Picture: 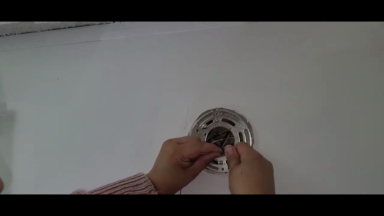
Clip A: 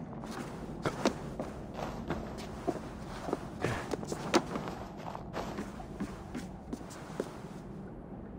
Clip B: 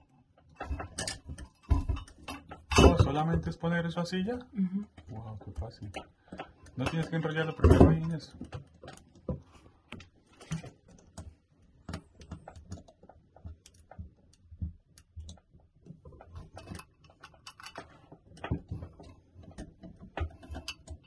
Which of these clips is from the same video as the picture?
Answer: B